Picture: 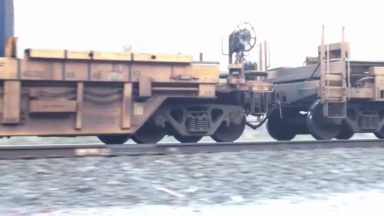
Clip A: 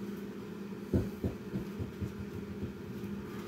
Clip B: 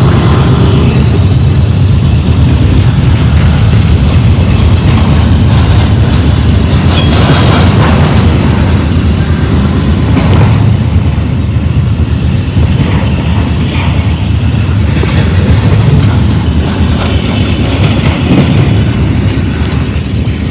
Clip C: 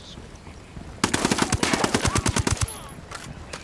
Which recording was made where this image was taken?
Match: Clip B